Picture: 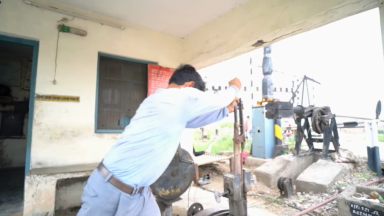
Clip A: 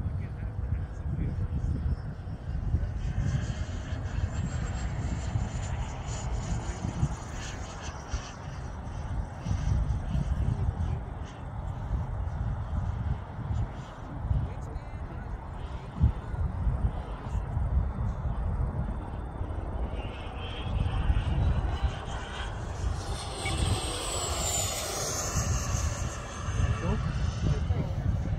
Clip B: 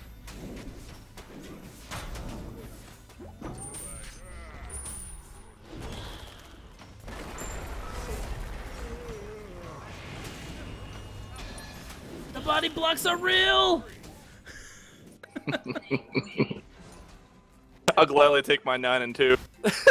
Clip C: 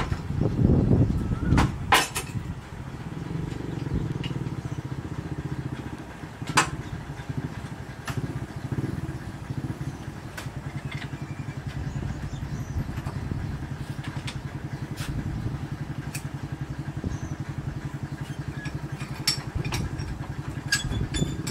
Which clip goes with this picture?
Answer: C